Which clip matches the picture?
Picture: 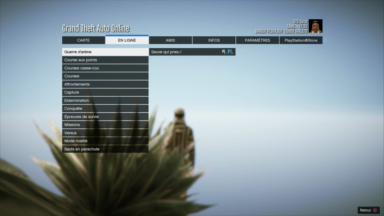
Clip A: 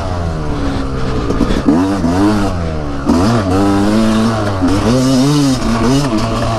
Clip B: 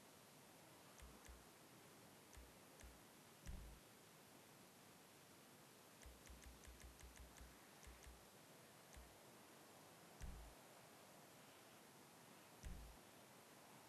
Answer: B